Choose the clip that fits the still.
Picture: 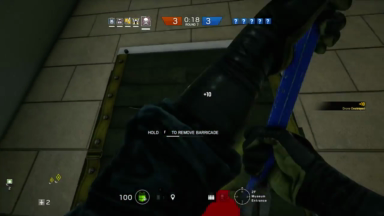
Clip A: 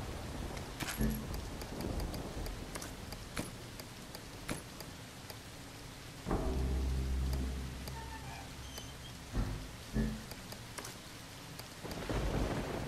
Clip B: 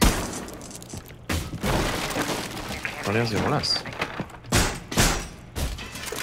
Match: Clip B